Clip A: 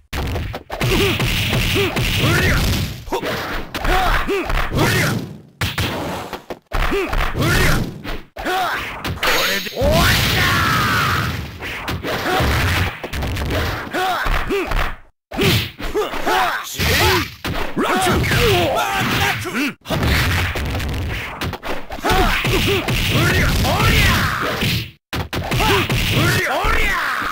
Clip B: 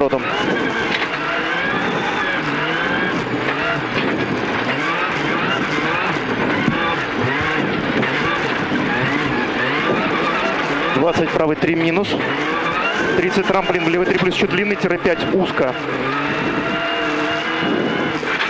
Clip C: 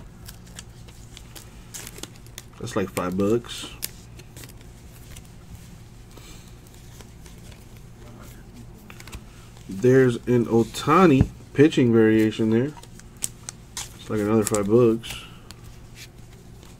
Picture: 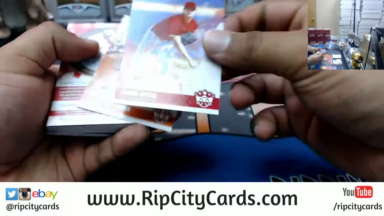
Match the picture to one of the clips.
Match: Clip C